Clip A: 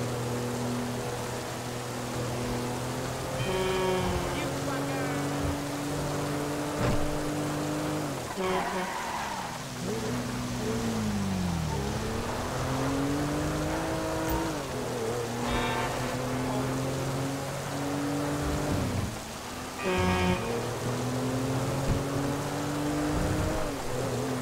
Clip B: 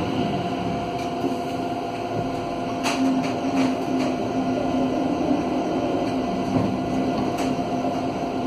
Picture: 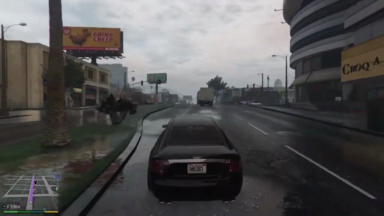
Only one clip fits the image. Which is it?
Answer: A